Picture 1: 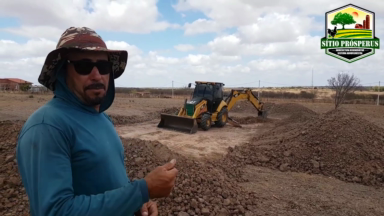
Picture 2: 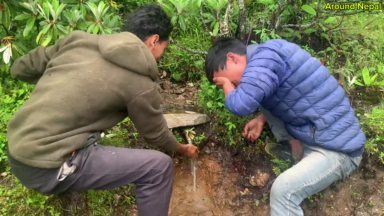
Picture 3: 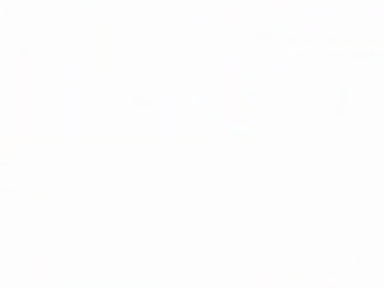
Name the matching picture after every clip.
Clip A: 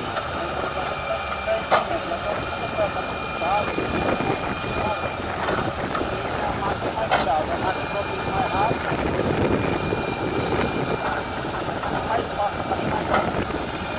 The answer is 1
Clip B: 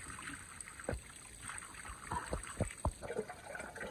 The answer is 2